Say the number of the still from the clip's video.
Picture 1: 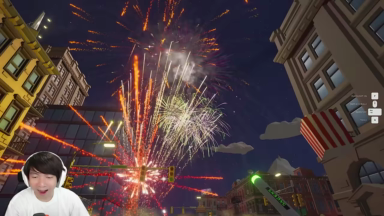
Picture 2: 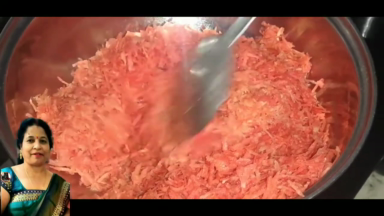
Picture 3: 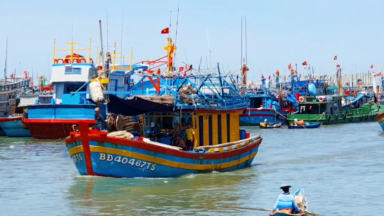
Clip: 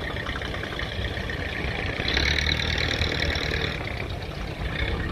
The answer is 3